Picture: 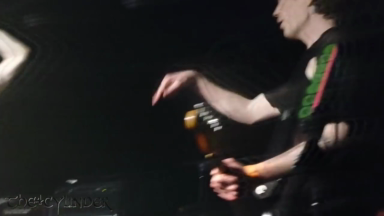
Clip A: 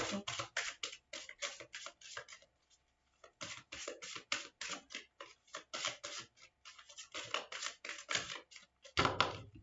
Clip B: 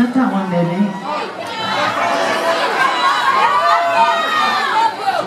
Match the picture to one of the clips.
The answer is B